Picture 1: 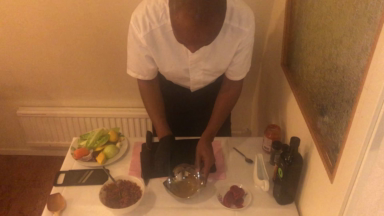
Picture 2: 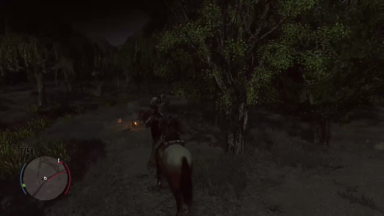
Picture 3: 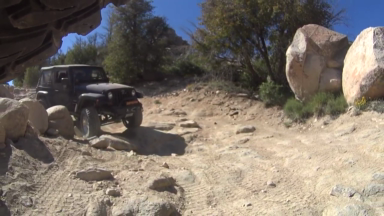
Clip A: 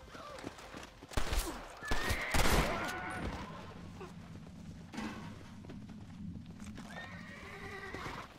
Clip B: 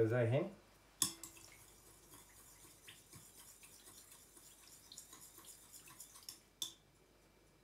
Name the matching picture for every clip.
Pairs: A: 2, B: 1